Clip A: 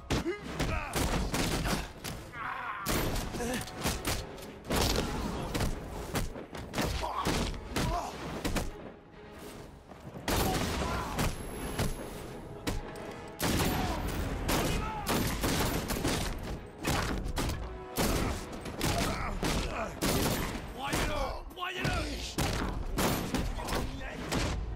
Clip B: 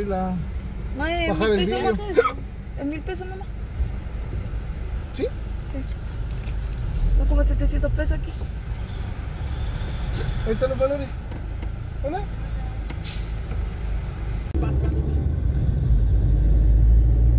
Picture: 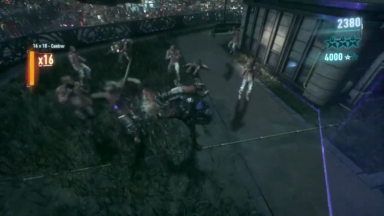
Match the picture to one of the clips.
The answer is A